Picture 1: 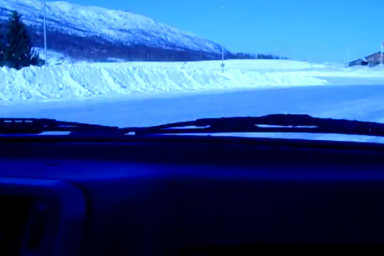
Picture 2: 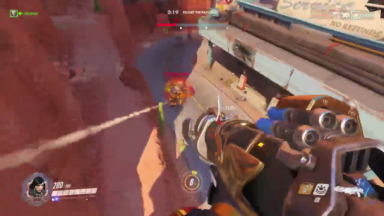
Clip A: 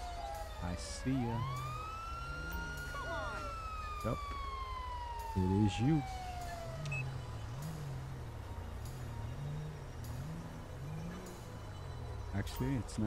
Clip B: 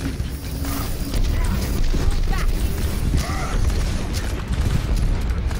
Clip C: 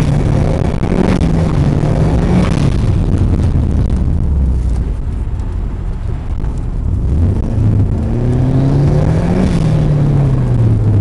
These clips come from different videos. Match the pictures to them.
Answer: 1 C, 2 B